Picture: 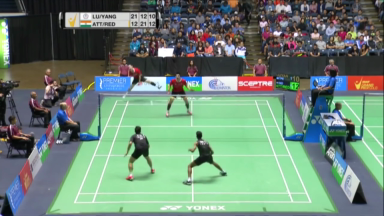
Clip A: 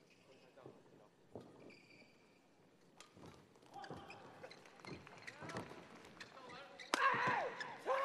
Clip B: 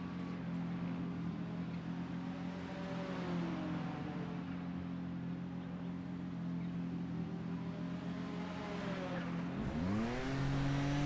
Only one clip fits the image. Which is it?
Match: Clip A